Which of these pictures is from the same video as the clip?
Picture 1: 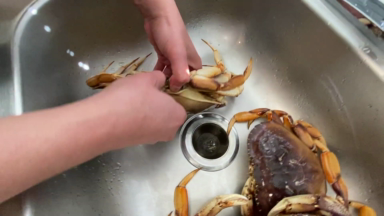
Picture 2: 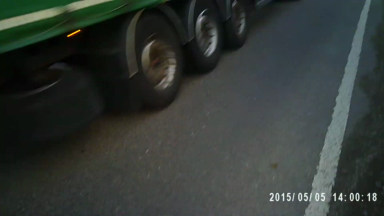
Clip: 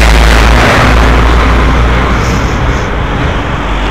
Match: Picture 2